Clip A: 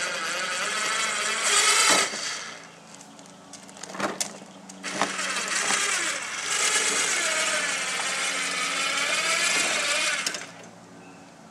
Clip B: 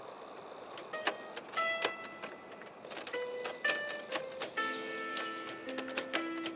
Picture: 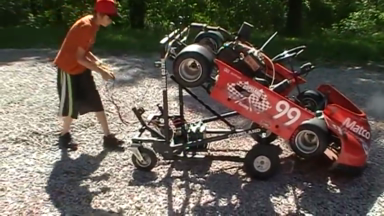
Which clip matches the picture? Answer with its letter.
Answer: A